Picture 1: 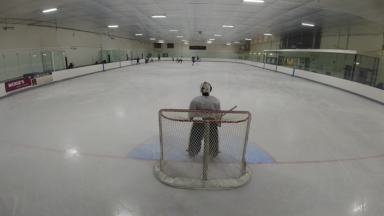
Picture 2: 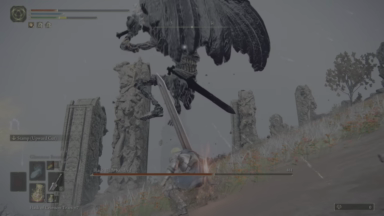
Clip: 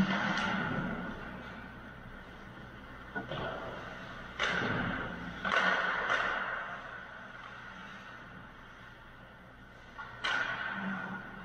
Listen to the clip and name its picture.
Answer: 1